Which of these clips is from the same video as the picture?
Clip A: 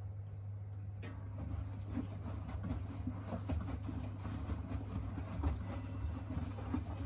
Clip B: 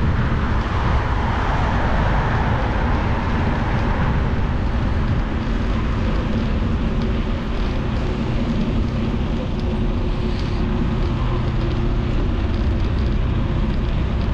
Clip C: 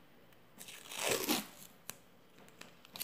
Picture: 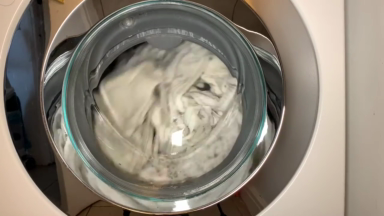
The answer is A